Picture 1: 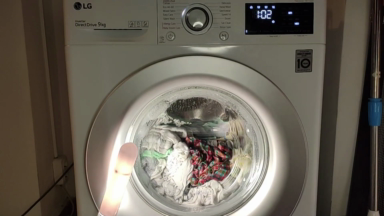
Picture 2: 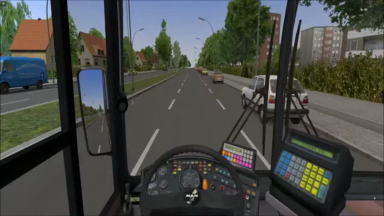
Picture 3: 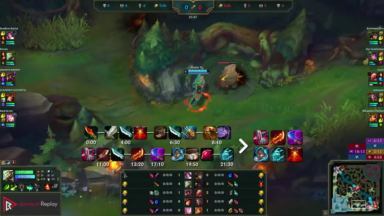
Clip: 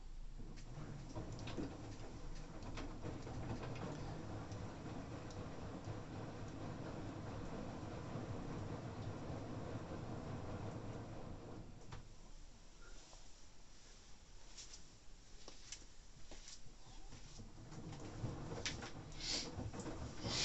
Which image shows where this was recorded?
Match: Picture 1